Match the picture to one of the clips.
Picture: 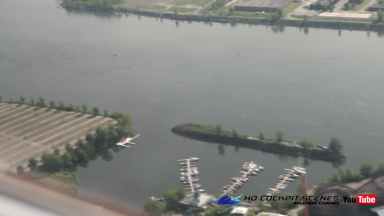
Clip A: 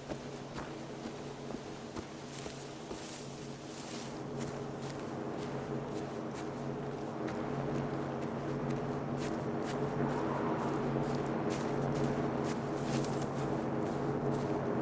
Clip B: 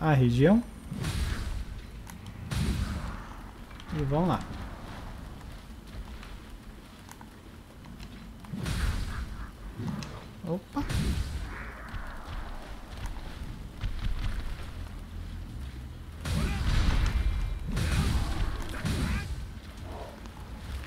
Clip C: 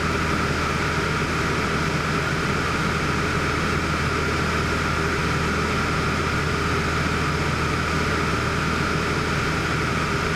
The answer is C